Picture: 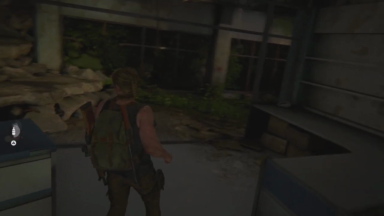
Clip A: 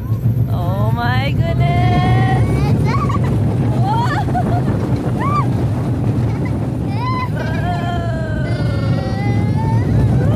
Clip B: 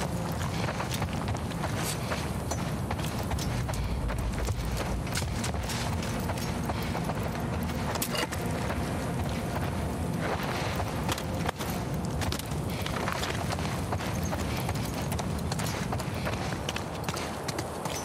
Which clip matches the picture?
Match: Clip B